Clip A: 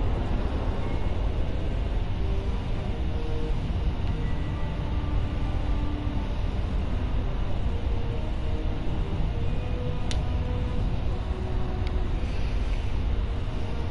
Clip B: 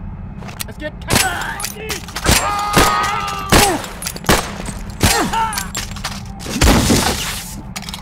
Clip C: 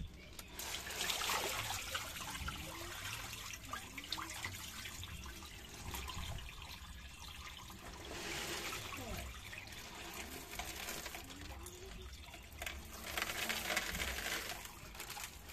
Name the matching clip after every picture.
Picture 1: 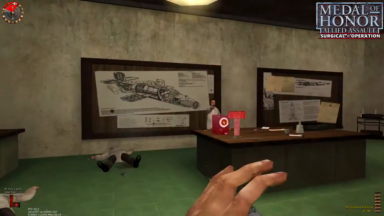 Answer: B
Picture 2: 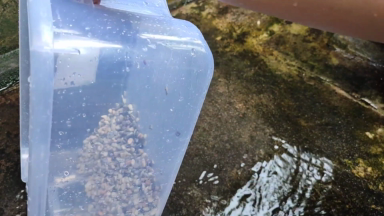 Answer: C